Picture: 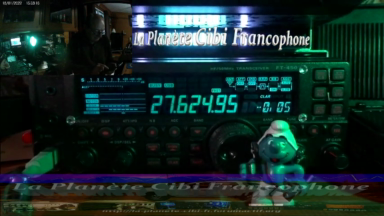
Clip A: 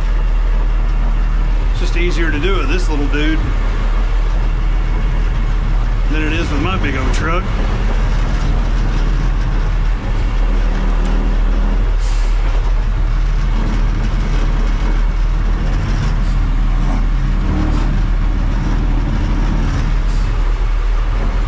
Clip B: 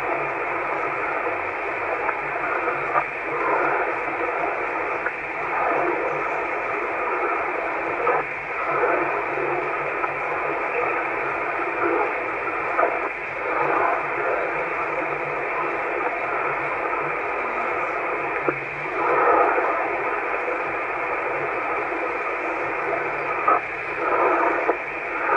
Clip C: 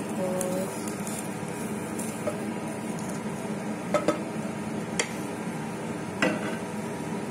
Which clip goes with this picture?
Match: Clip B